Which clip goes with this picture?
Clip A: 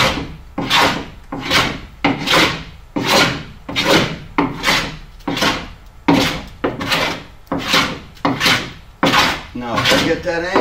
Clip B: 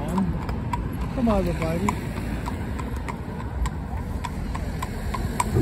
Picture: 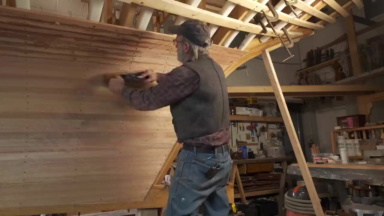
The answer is A